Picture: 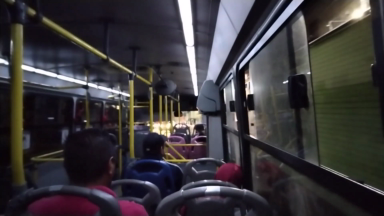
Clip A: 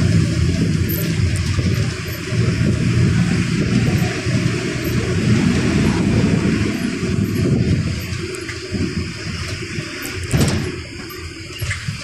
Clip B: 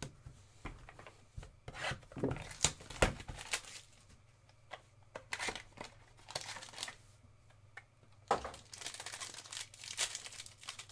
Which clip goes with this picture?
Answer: A